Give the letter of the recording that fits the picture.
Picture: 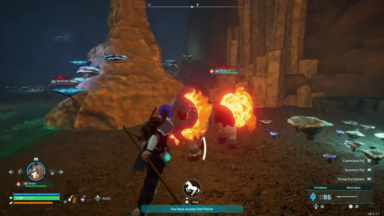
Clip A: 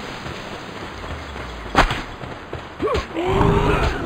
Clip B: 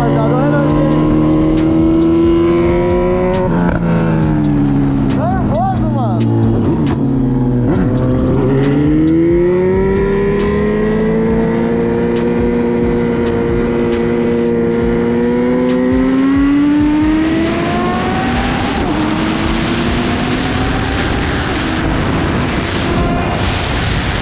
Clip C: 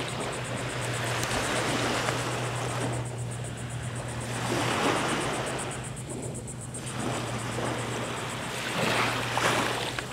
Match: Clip A